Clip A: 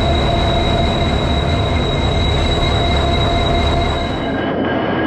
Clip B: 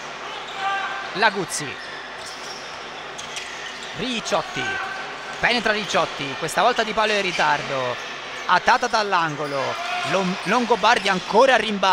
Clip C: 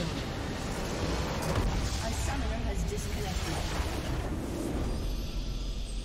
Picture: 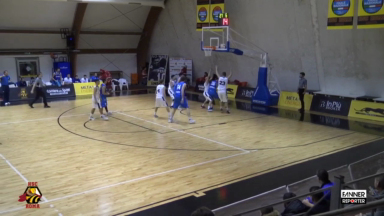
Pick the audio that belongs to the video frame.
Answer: B